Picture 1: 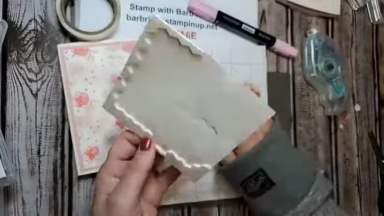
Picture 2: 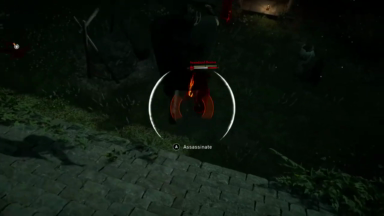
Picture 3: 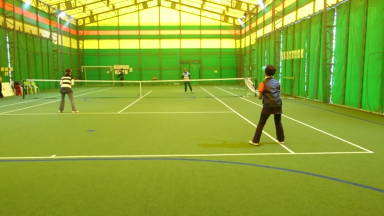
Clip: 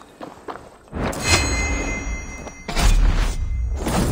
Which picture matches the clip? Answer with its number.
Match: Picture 2